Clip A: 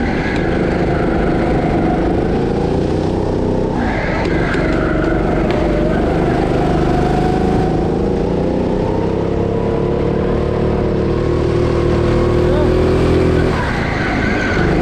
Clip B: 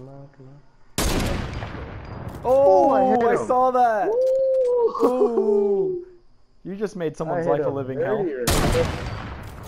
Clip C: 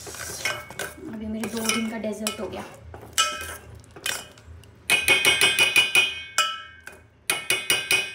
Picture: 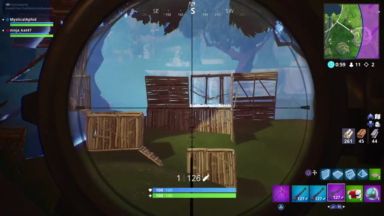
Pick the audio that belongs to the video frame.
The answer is B